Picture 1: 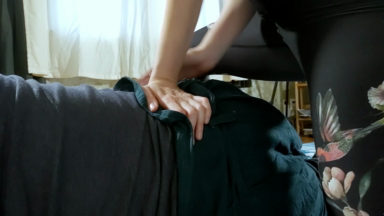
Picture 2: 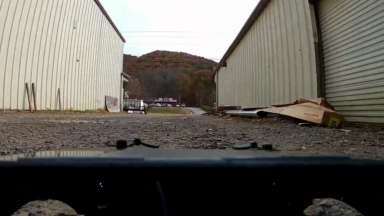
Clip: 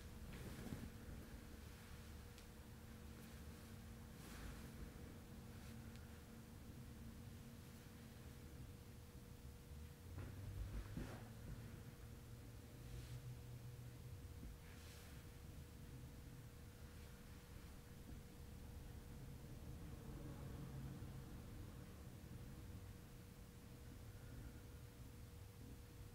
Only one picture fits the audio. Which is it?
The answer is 1